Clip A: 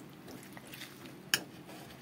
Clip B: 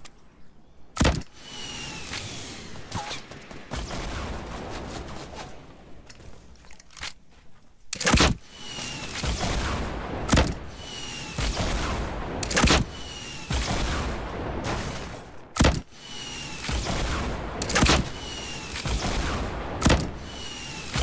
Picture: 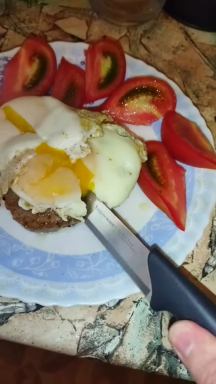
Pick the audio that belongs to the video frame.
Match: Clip A